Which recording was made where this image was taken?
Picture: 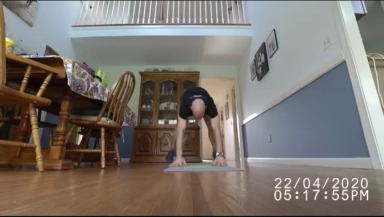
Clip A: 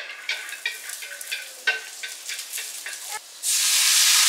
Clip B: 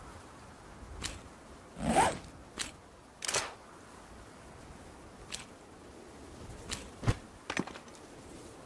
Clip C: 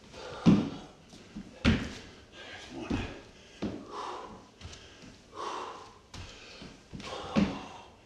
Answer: C